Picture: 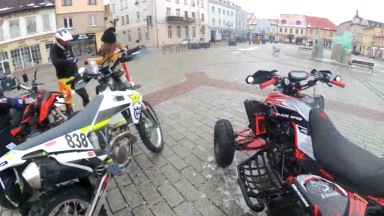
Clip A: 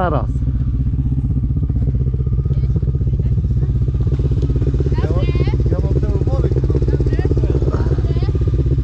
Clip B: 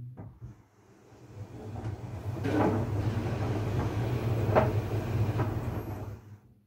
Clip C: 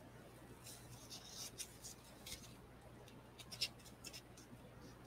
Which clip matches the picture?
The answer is A